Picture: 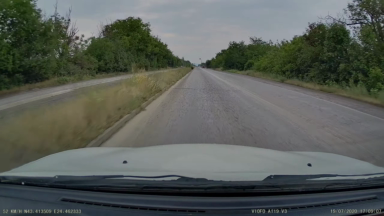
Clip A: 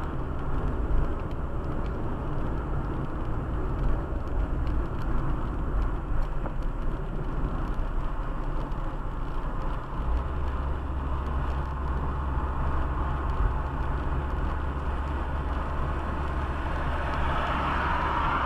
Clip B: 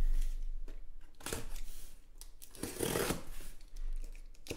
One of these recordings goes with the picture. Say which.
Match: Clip A